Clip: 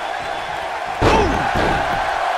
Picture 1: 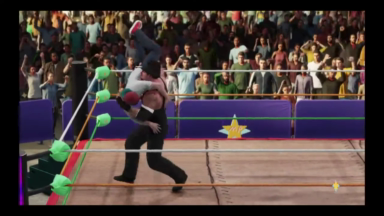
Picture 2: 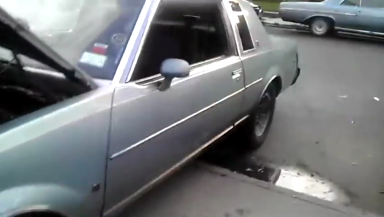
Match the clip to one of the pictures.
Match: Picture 1